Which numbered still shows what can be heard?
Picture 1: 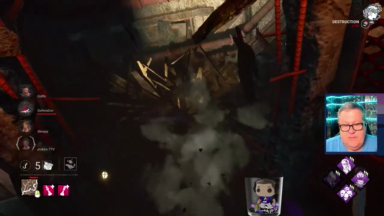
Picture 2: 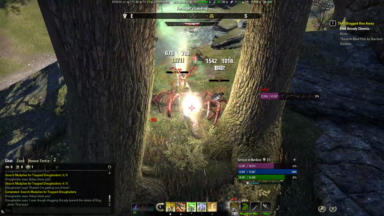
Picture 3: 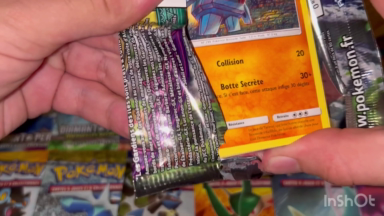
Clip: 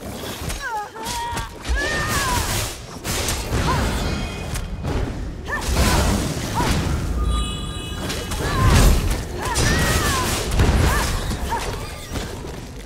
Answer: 2